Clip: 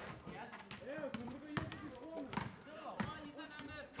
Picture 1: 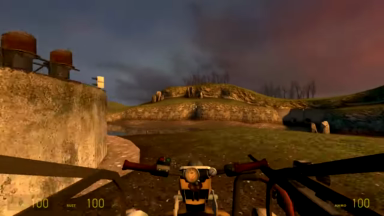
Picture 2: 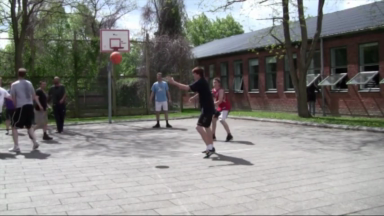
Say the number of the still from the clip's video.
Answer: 2